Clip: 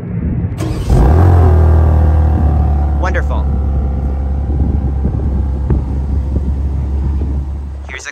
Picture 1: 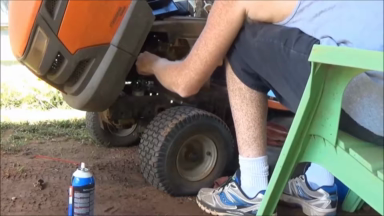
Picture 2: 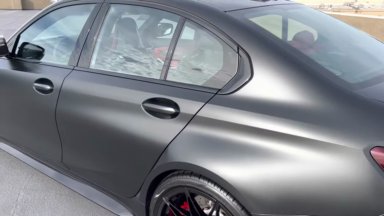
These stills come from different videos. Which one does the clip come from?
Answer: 2